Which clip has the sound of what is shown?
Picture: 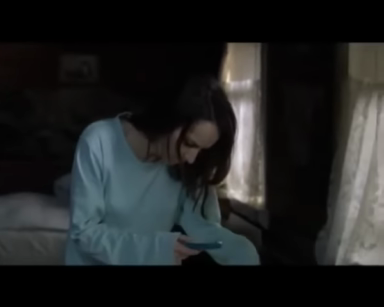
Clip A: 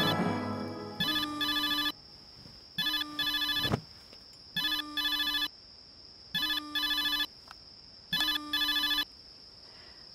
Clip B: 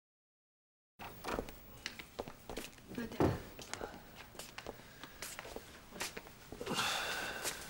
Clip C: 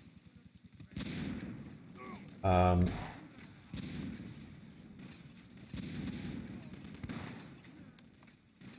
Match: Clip A